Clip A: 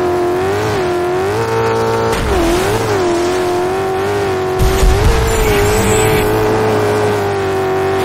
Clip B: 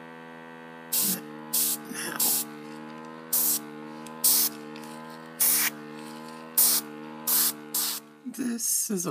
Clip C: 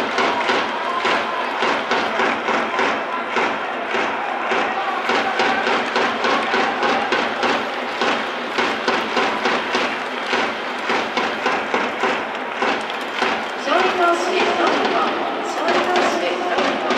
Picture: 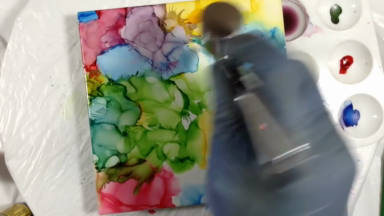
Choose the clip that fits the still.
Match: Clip B